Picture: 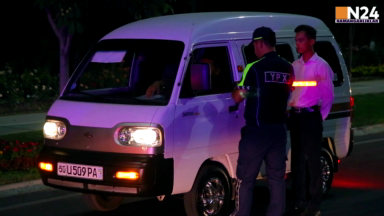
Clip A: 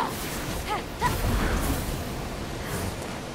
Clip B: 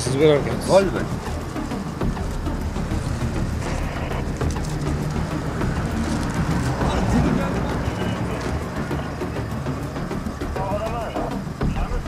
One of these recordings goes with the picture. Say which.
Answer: B